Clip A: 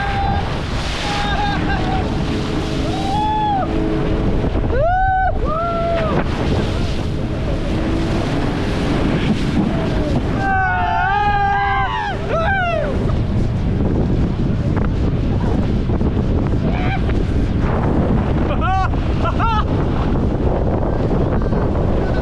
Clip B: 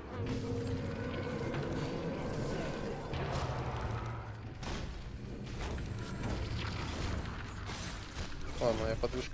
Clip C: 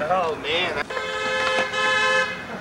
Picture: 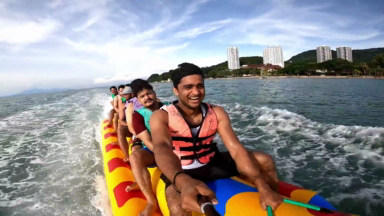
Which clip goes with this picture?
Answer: A